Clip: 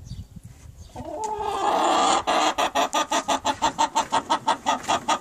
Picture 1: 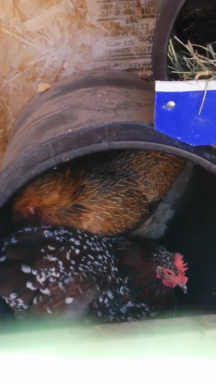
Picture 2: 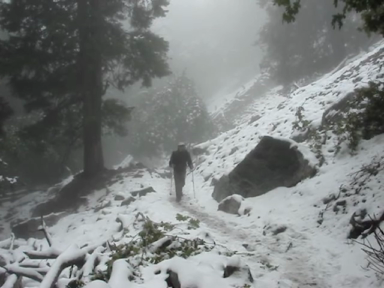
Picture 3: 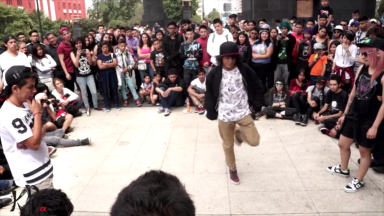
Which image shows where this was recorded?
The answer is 1